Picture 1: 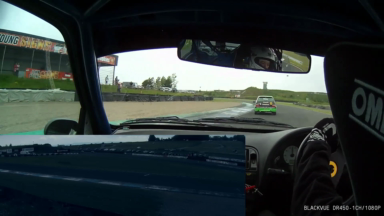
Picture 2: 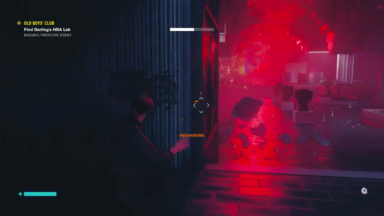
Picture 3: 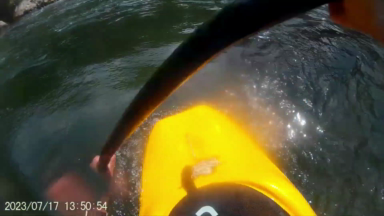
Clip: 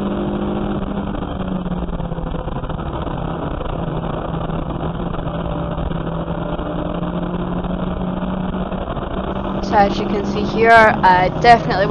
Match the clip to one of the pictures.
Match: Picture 1